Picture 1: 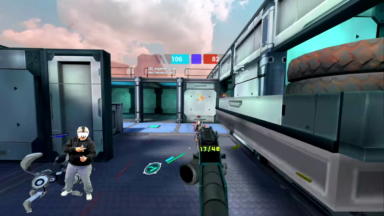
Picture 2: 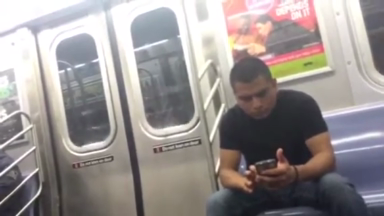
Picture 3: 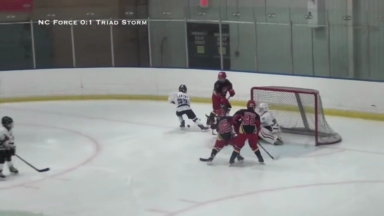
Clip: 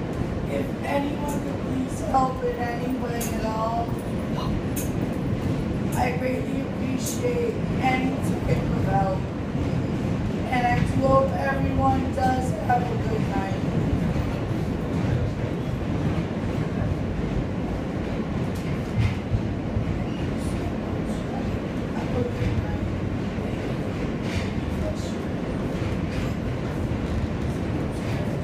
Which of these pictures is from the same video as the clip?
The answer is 2